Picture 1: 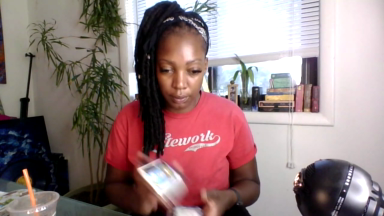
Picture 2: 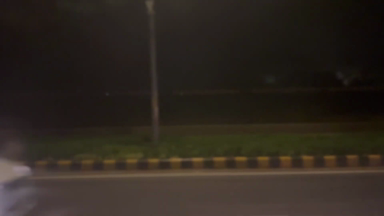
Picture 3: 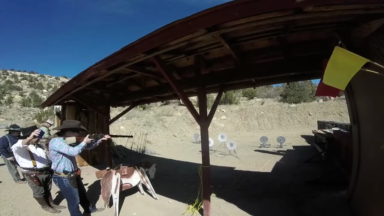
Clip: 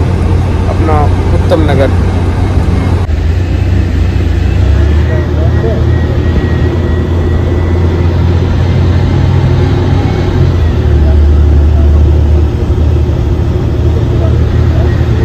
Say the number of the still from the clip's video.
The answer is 2